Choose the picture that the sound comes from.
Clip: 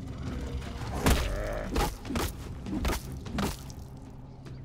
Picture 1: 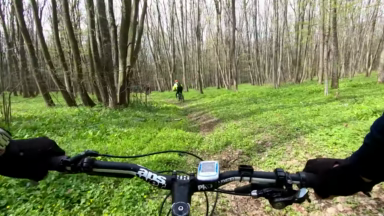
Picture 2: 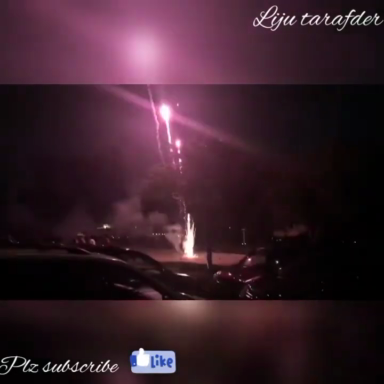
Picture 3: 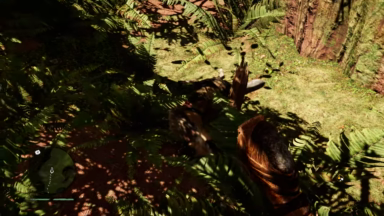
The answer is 3